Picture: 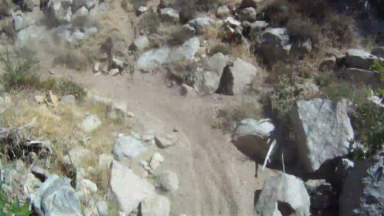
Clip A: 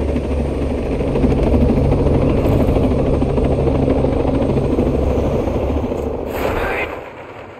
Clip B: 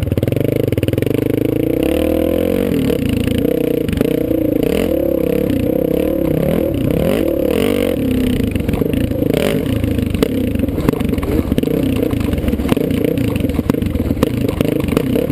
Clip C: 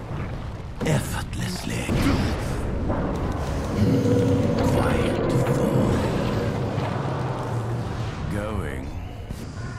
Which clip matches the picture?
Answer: B